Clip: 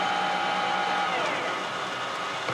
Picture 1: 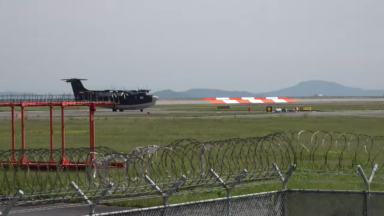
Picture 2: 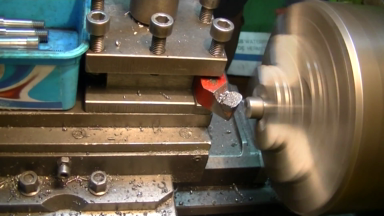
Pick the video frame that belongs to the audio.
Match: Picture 2